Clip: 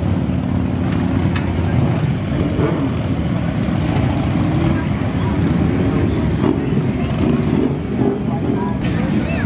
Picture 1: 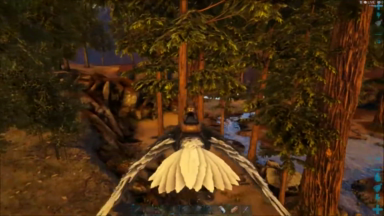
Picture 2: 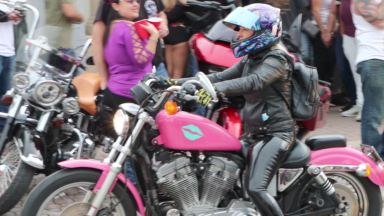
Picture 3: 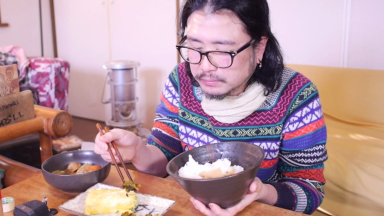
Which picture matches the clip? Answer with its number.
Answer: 2